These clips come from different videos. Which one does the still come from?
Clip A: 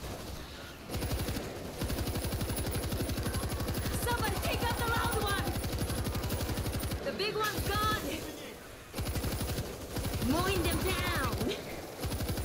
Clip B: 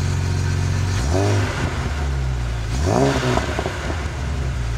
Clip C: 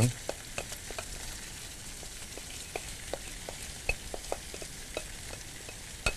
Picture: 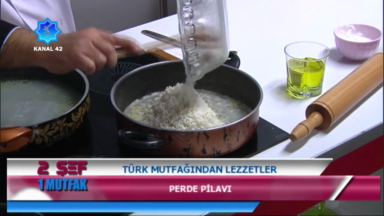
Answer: C